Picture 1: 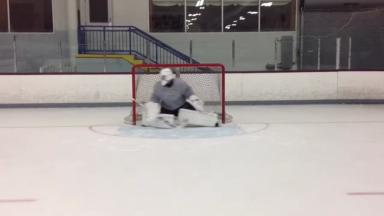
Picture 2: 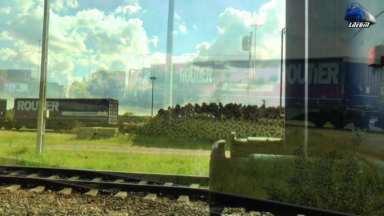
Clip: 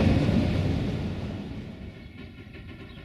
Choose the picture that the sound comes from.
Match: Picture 2